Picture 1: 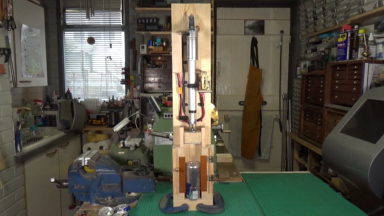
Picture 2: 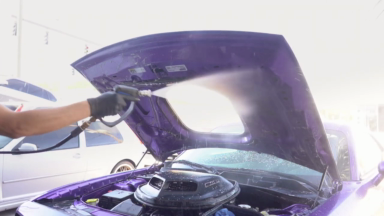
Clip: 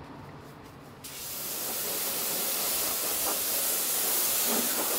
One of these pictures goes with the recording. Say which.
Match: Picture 2